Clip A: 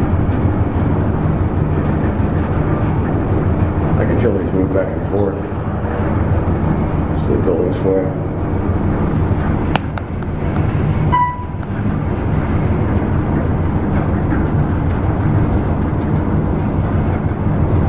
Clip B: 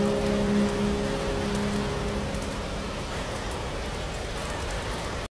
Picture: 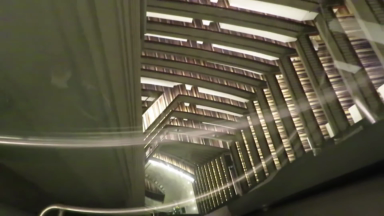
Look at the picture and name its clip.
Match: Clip A